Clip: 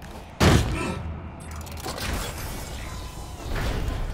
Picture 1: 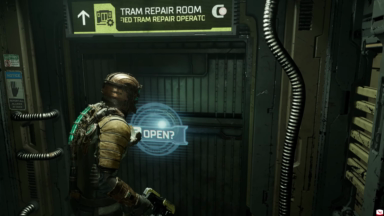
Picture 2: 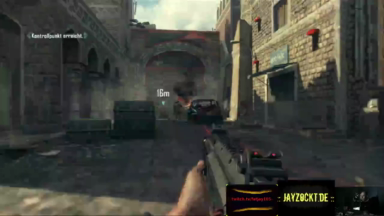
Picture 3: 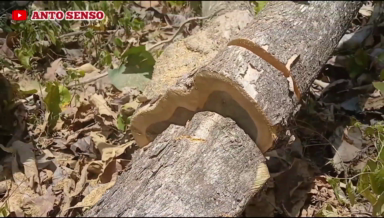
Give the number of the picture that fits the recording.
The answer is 1